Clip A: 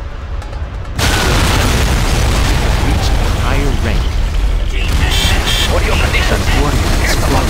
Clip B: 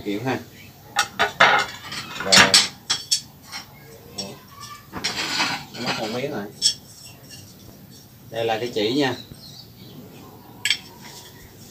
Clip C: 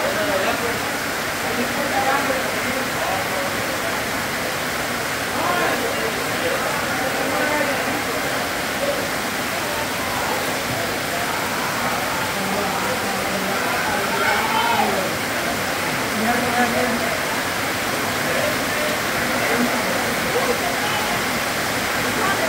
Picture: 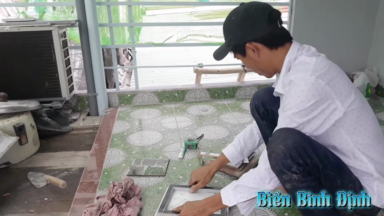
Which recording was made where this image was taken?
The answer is B